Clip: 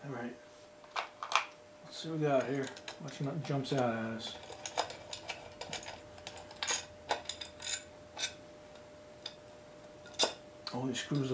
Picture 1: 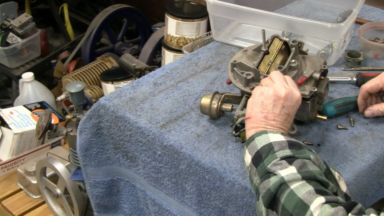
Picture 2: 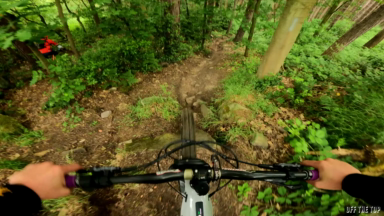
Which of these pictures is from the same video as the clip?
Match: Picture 1